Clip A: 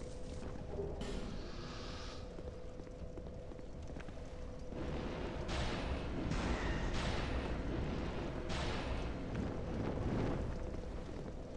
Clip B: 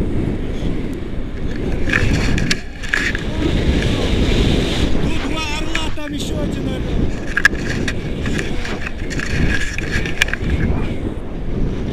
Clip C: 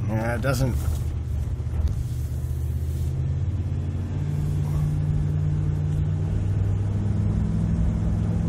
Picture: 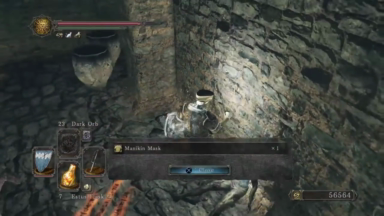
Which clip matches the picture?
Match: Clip A